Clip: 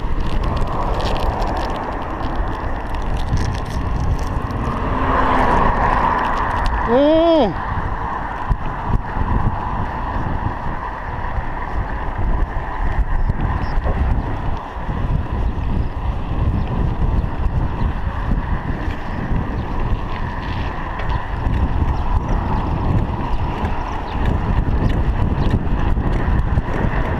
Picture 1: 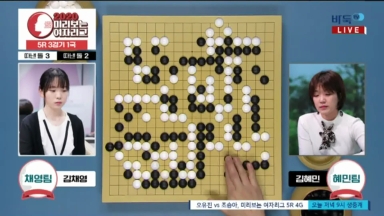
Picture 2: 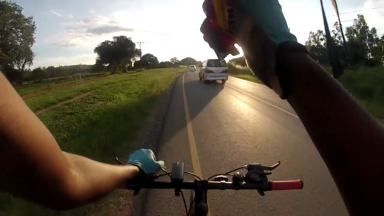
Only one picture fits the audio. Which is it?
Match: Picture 2